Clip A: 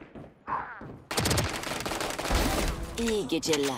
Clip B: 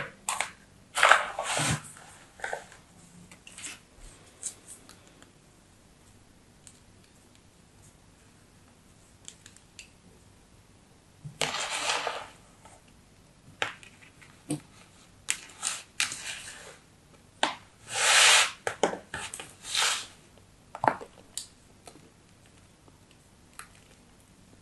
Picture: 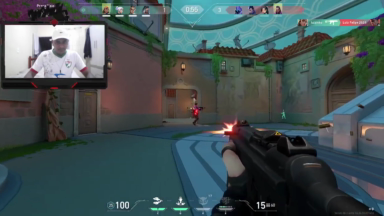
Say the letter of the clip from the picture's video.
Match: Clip A